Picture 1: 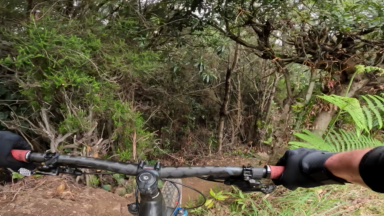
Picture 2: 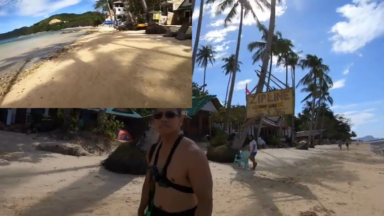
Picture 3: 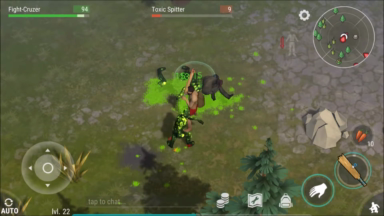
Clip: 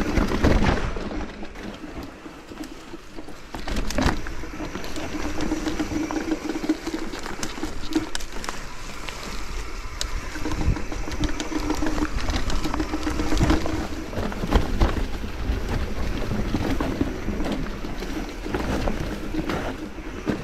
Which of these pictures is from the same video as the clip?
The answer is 1